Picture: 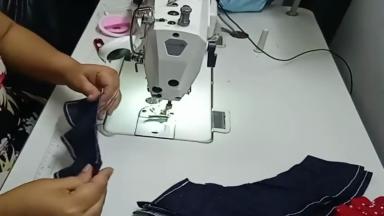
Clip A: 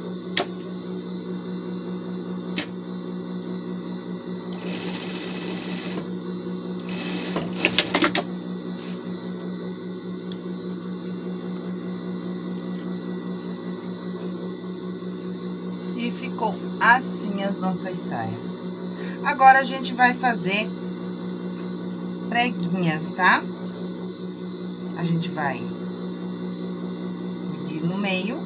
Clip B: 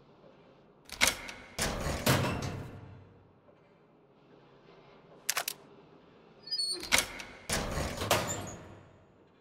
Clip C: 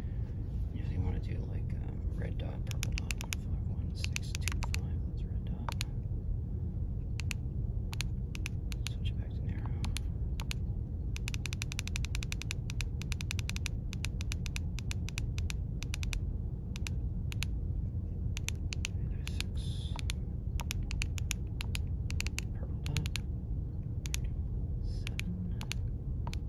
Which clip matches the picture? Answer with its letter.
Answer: A